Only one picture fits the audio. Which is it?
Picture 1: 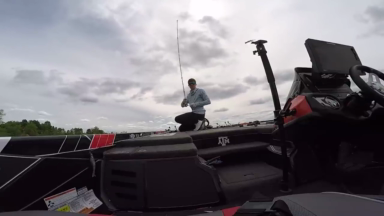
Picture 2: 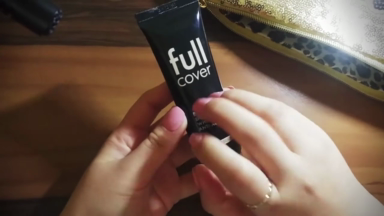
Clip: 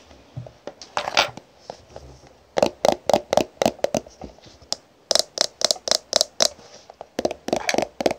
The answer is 2